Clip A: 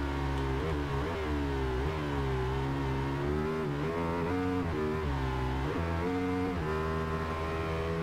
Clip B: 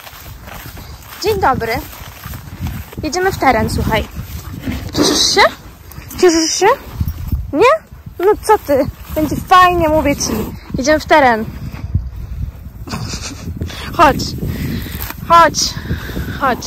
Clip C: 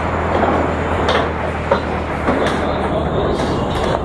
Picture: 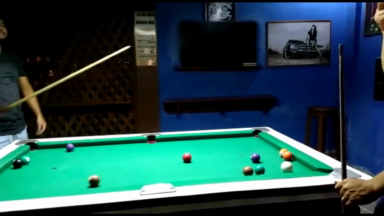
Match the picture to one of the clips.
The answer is C